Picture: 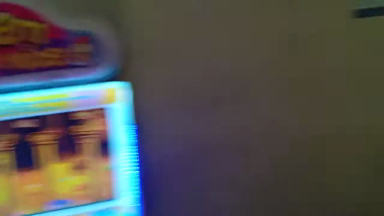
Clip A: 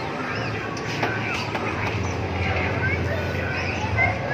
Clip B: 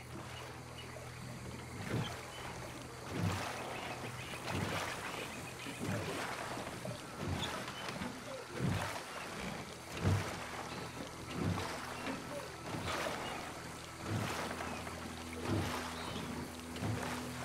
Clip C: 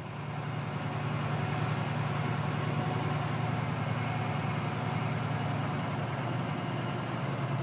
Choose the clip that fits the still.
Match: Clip A